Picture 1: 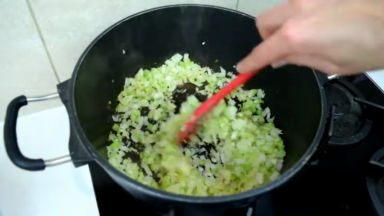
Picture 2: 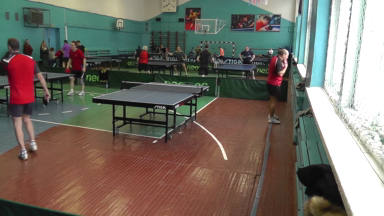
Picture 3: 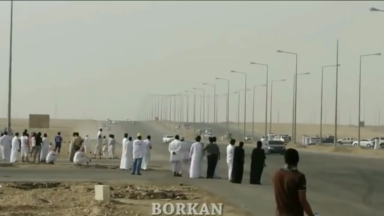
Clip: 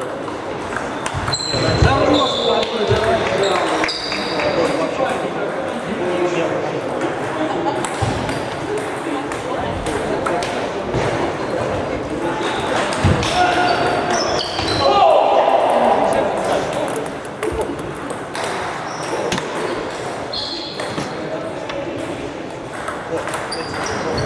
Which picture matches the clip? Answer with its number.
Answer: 2